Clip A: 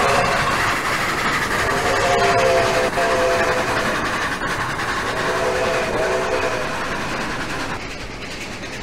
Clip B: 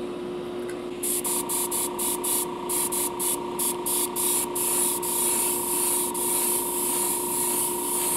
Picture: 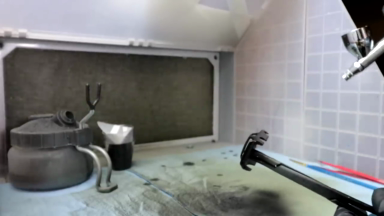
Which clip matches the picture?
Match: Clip B